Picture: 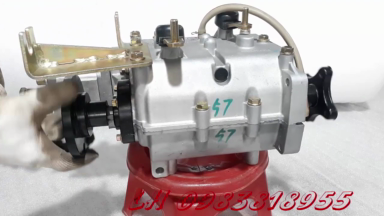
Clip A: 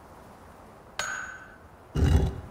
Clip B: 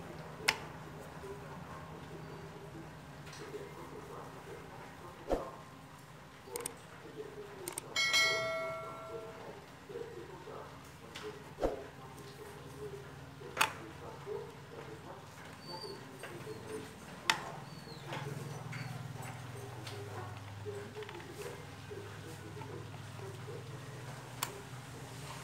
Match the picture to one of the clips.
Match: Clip B